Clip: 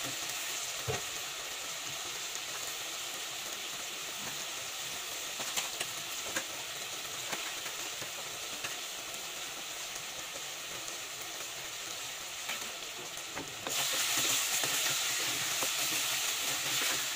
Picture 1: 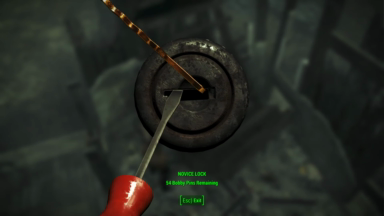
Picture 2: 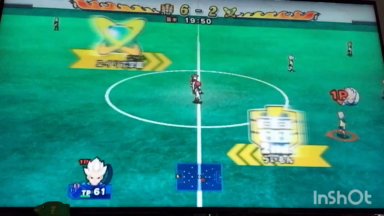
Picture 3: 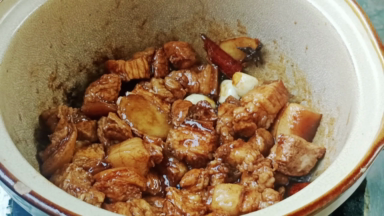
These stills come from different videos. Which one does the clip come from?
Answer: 3